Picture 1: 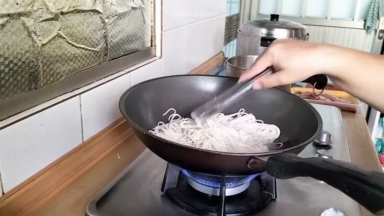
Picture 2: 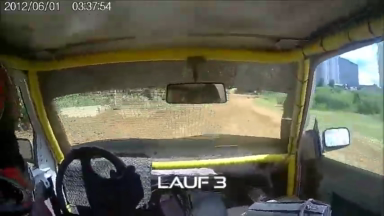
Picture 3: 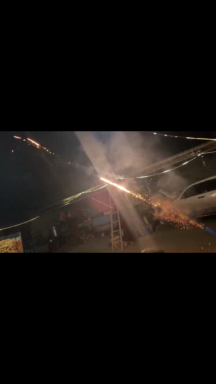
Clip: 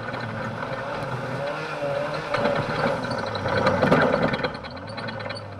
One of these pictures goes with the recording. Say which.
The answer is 2